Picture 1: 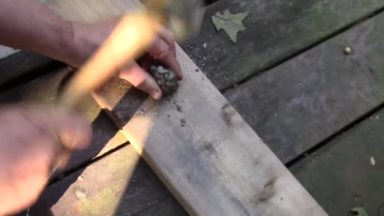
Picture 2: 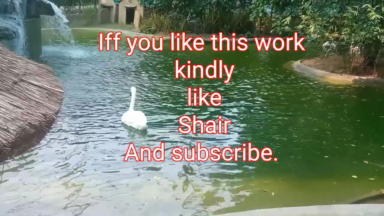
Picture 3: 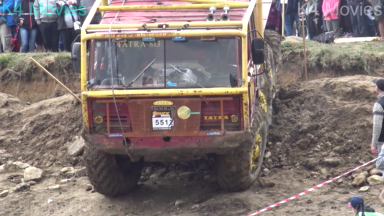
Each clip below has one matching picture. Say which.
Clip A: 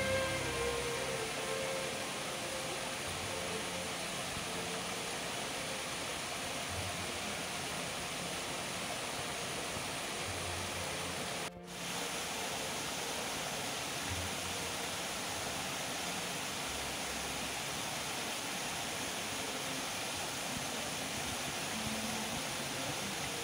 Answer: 2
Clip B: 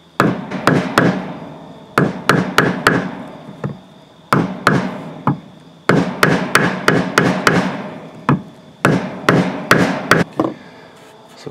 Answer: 1